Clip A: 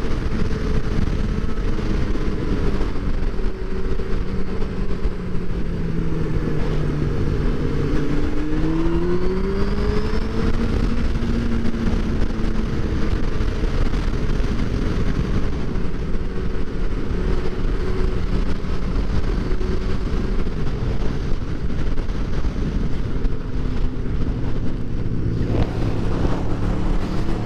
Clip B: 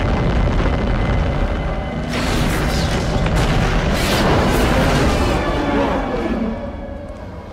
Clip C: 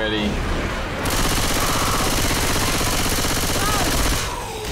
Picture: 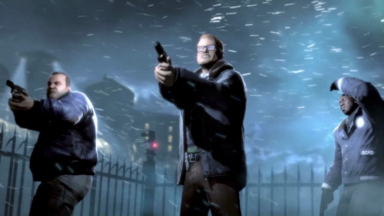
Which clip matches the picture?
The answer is B